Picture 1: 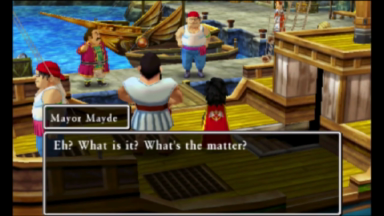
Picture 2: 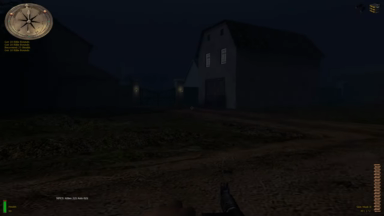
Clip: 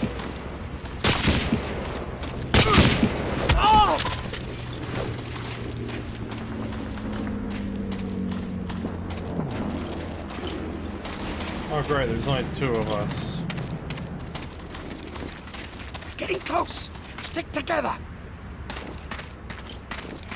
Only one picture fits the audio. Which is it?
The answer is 2